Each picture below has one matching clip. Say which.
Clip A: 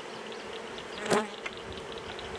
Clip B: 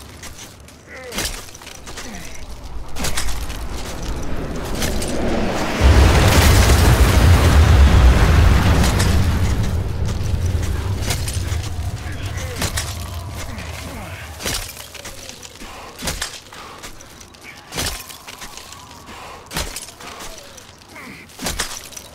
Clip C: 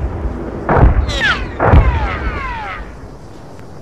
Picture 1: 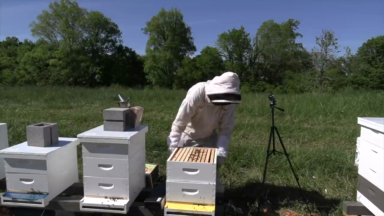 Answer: A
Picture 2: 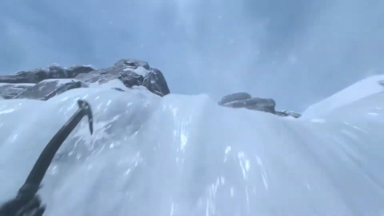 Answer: B